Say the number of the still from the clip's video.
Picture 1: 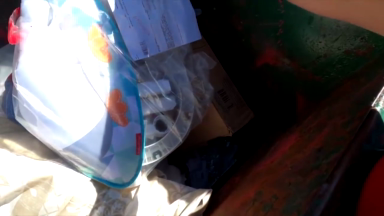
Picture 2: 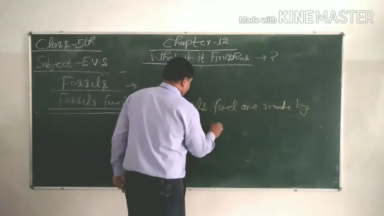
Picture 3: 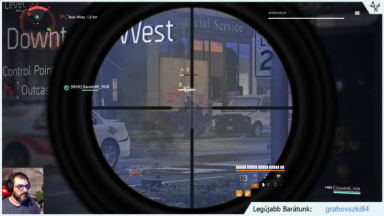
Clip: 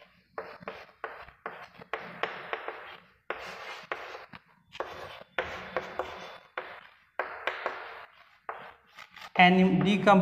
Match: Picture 2